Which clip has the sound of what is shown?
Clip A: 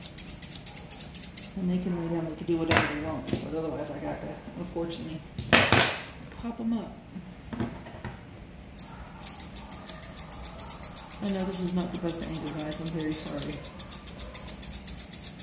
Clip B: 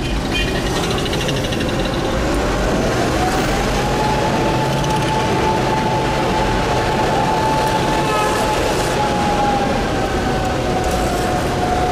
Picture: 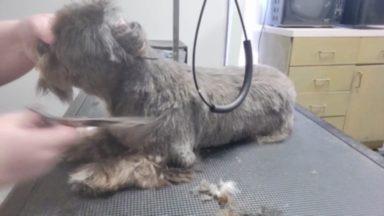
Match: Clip A